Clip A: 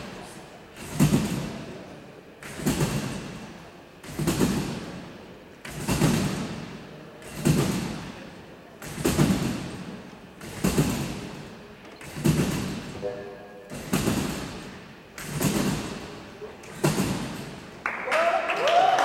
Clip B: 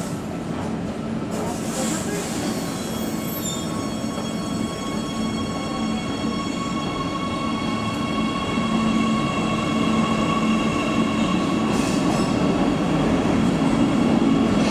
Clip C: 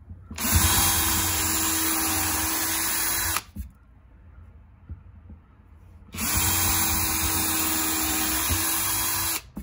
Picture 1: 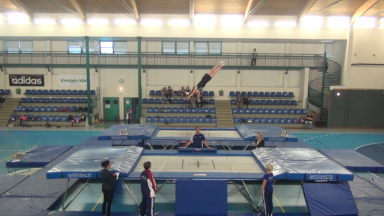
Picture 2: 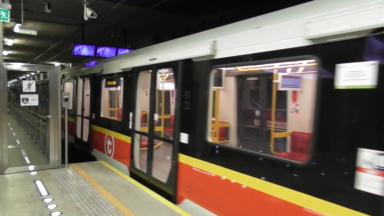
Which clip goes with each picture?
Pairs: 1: A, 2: B